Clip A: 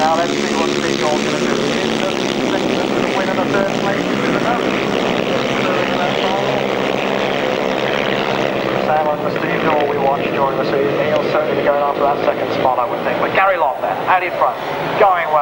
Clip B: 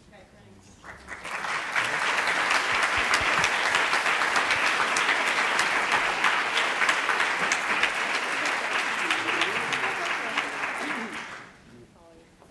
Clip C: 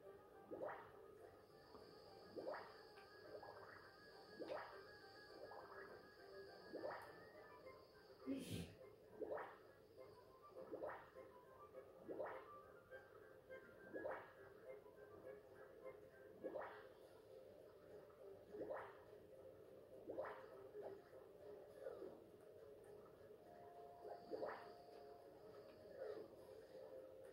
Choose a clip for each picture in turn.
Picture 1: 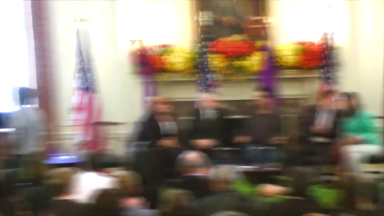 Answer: B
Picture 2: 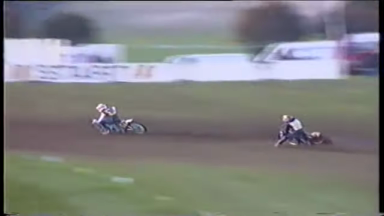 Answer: A